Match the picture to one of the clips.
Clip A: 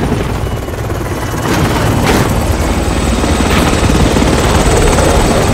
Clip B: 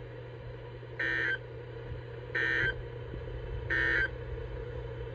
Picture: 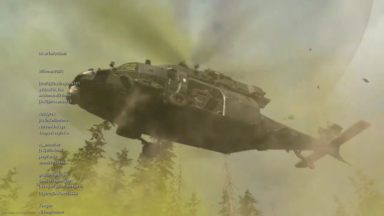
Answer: A